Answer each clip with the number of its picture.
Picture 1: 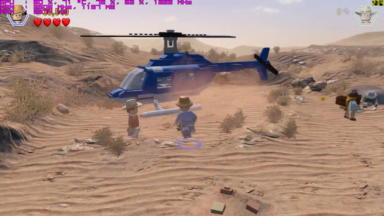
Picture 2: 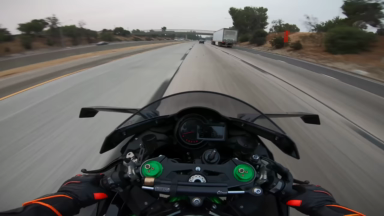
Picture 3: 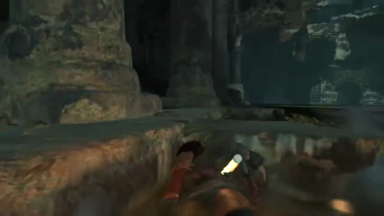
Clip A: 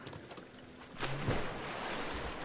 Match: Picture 3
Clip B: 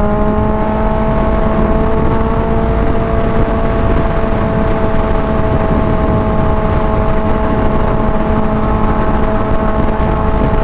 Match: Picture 2